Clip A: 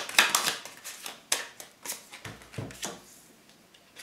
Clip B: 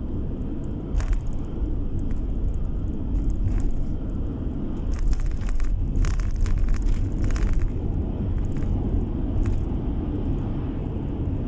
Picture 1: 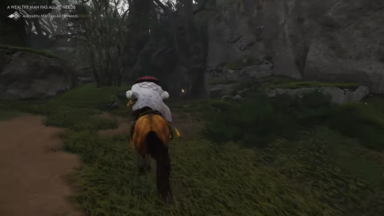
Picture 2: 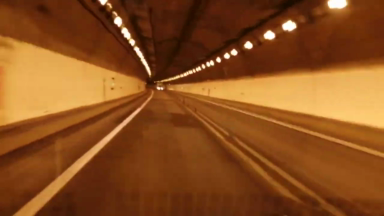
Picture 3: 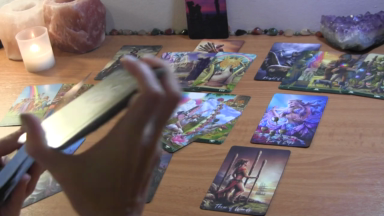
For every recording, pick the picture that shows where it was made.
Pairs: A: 3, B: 2